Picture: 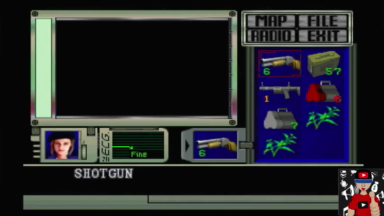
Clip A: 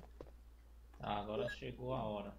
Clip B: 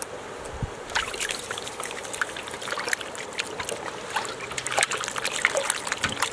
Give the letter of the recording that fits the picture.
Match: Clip A